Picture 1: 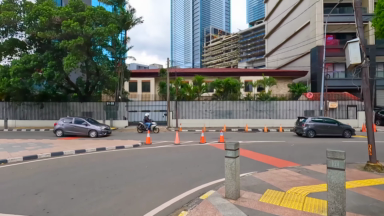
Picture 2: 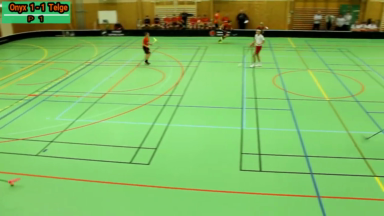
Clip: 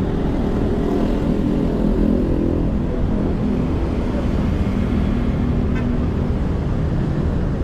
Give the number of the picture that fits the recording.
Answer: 1